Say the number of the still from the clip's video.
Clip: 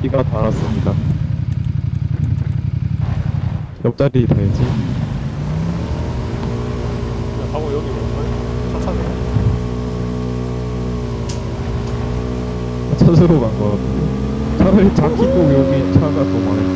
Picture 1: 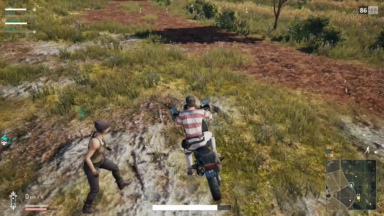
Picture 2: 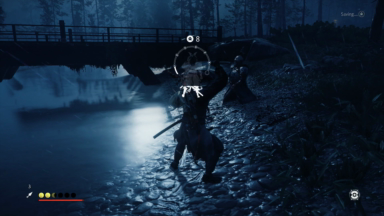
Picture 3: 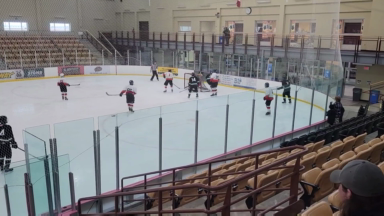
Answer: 1